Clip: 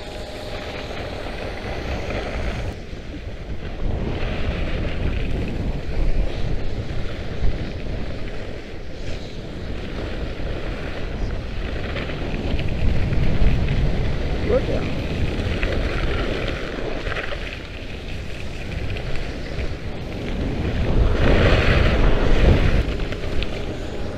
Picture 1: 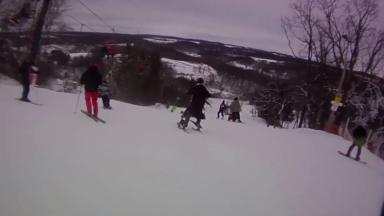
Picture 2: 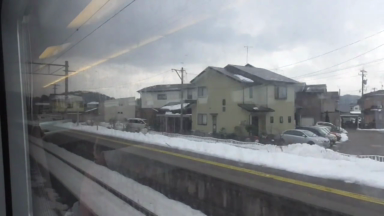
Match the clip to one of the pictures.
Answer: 1